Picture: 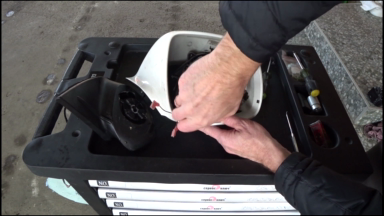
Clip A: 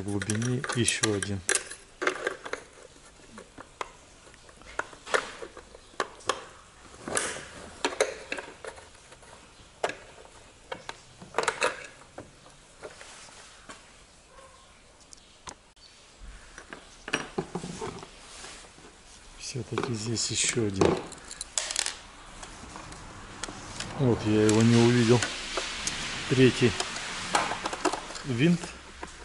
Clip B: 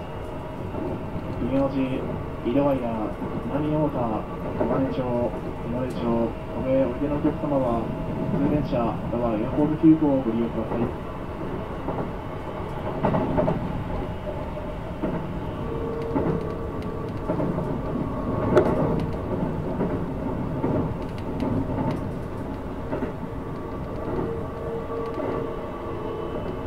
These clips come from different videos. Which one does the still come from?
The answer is A